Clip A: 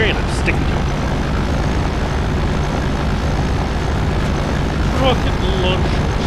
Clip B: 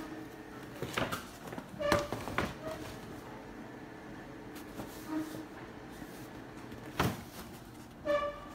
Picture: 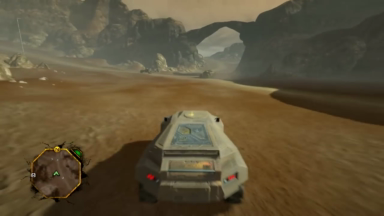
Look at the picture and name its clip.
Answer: A